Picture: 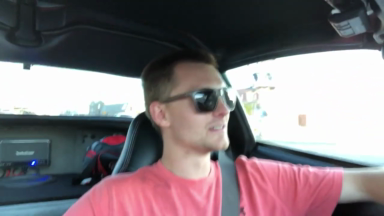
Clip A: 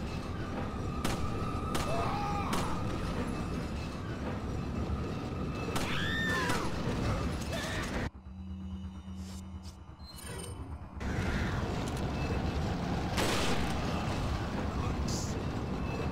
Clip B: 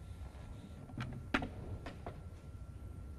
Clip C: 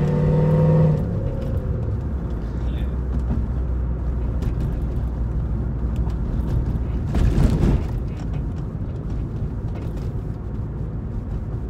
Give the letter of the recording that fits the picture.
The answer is C